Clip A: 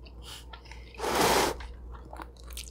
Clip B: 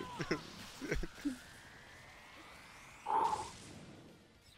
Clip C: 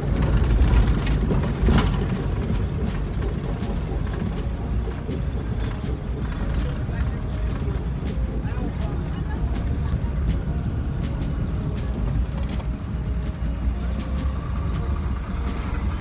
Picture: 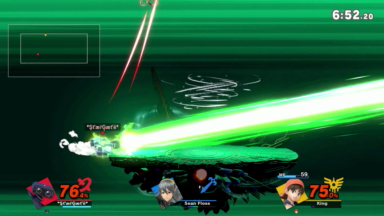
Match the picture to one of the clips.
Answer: B